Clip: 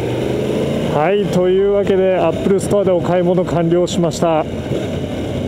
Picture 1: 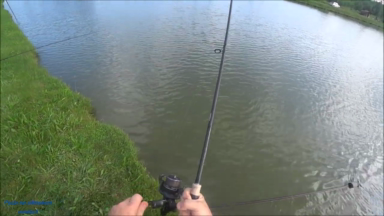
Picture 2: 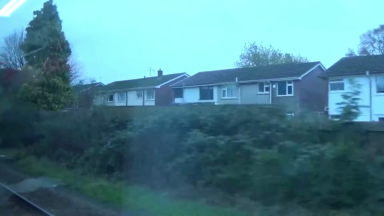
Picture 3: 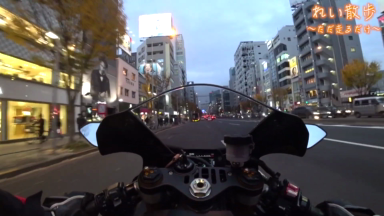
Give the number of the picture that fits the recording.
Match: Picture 3